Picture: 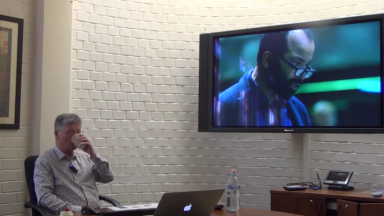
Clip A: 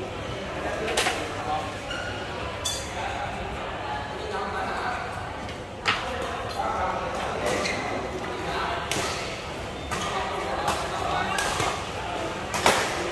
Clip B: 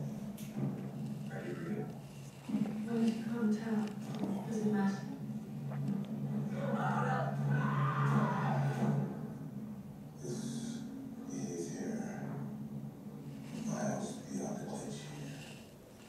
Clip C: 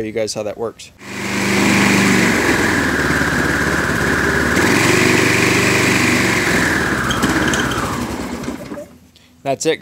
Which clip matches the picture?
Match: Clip B